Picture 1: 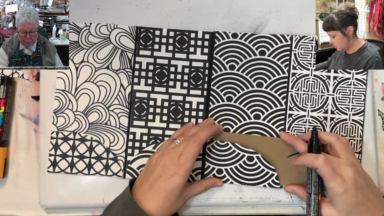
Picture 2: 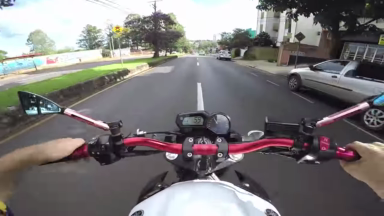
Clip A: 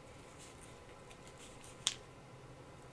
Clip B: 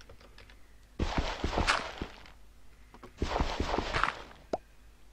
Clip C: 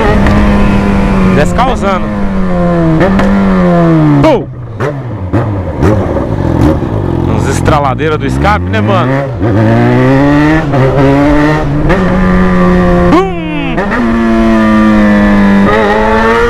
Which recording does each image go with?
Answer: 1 A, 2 C